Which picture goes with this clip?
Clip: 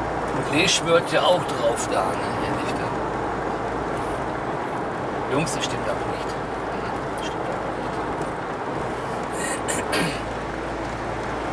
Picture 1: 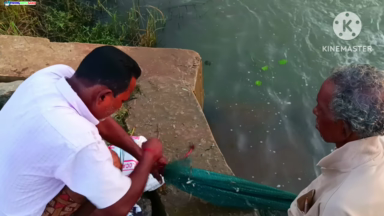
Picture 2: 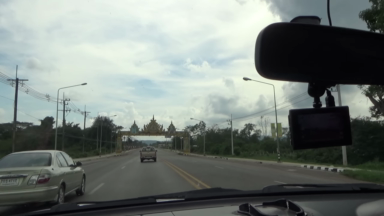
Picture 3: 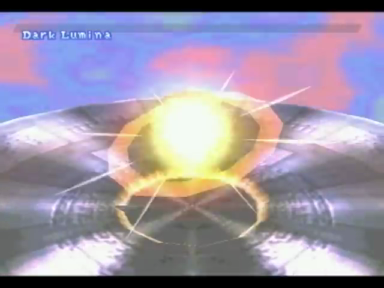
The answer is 2